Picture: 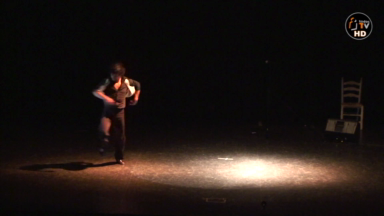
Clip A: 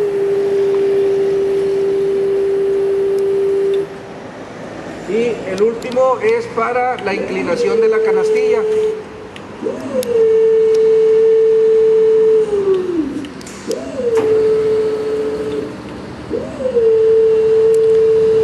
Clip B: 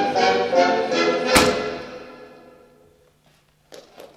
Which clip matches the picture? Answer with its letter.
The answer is B